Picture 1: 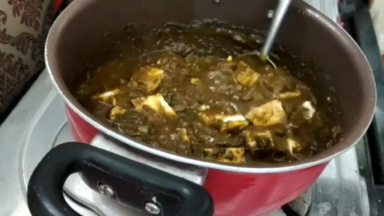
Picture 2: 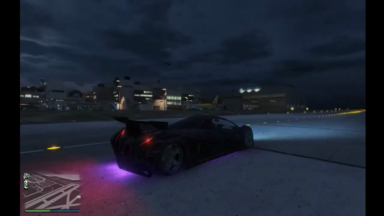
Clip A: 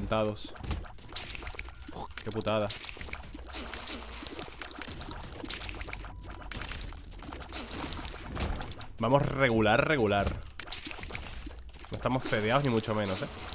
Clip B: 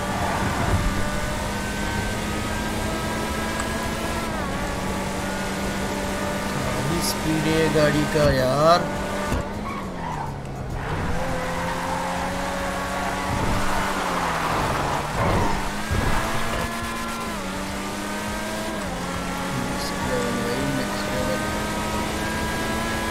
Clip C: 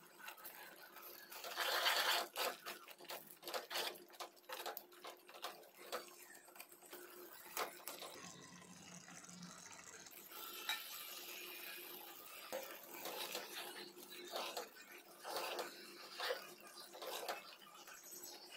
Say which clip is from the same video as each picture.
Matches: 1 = C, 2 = B